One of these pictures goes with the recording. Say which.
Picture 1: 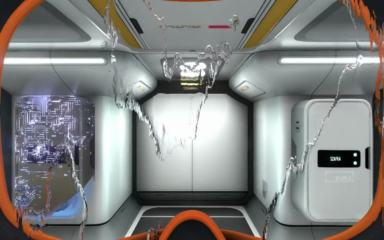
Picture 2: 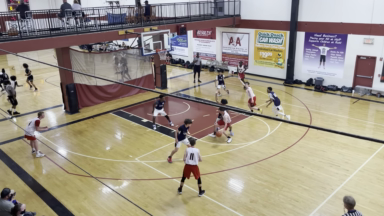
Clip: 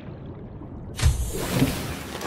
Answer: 1